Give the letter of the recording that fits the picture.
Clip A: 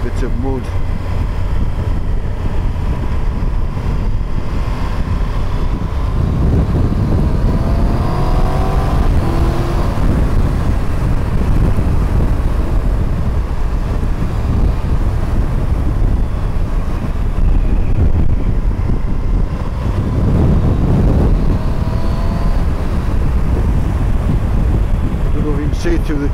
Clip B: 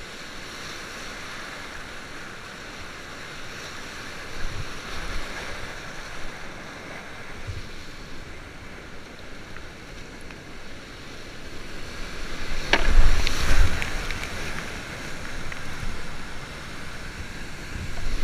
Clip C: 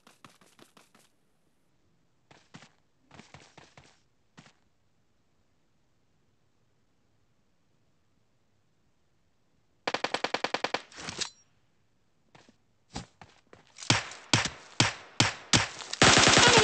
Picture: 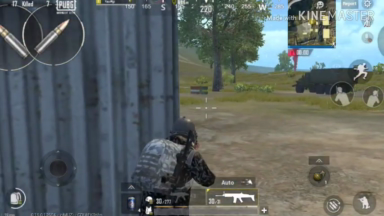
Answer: C